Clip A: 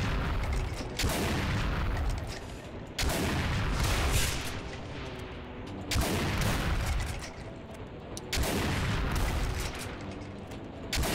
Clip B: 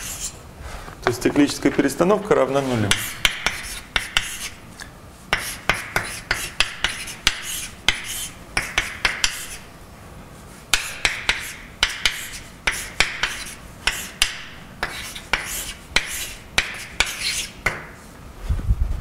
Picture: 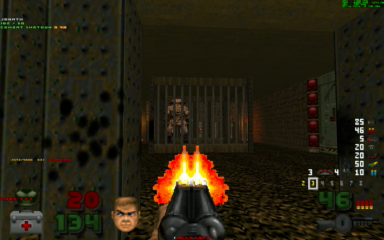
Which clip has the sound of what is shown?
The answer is A